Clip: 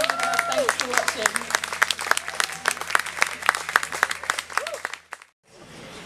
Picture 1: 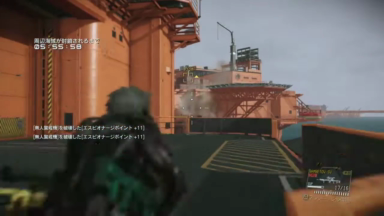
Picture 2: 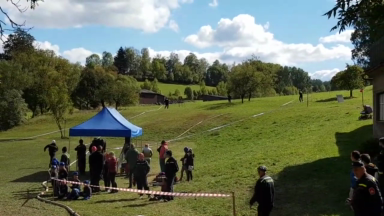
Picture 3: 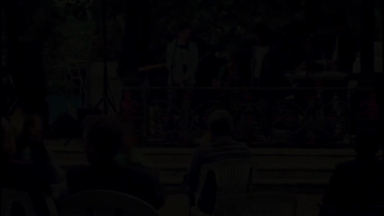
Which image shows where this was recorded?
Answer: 3